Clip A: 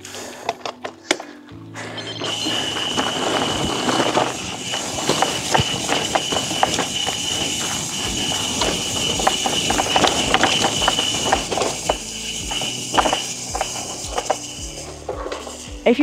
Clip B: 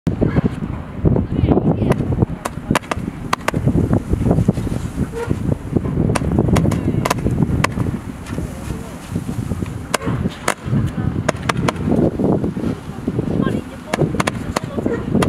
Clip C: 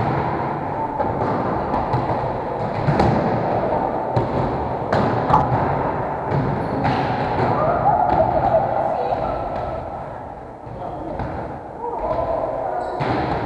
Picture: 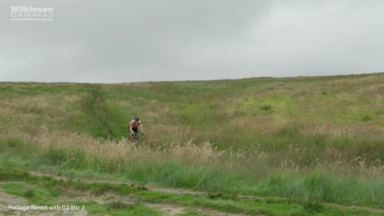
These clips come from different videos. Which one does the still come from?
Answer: A